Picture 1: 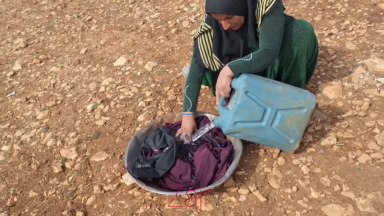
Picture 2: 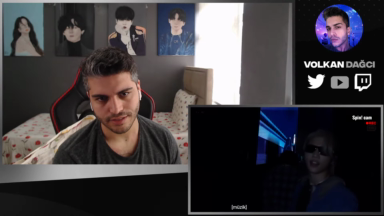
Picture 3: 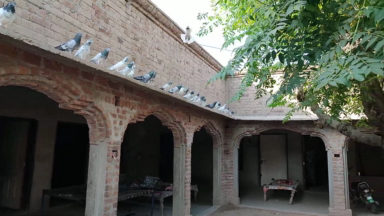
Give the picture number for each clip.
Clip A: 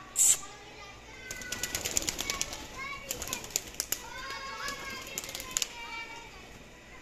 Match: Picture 3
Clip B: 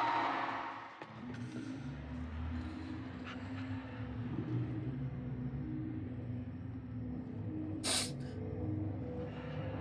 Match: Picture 2